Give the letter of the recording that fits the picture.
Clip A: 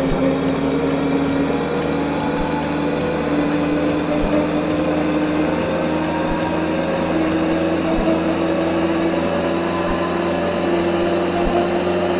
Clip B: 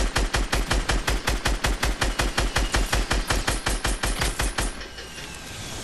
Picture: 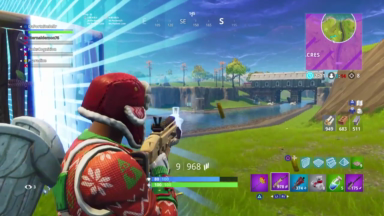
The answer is B